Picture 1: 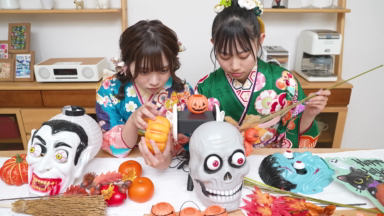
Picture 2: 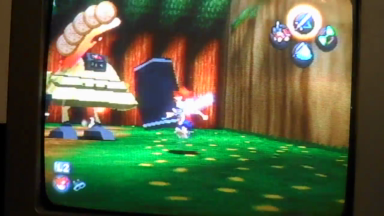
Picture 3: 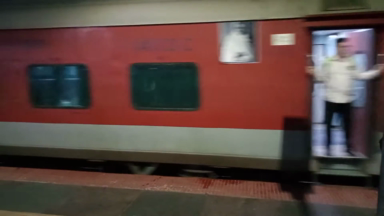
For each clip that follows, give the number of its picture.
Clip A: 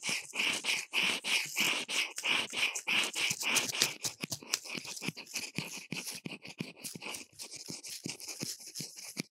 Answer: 1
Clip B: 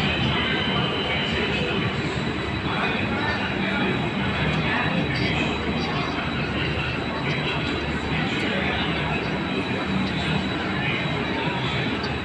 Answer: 3